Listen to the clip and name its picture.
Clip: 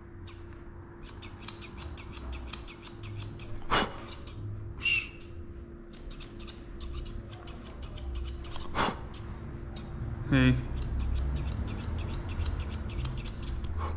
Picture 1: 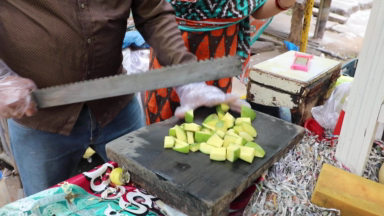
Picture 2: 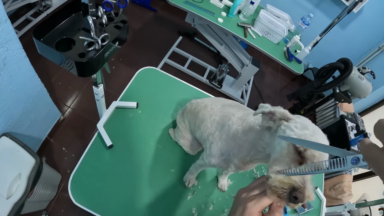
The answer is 2